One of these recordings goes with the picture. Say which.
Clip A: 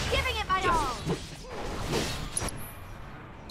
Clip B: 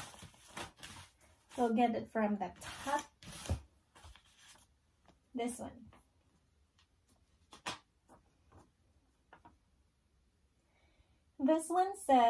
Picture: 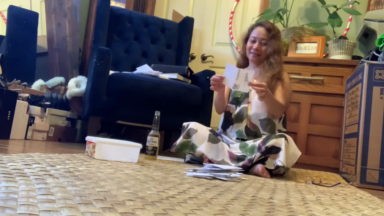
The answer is B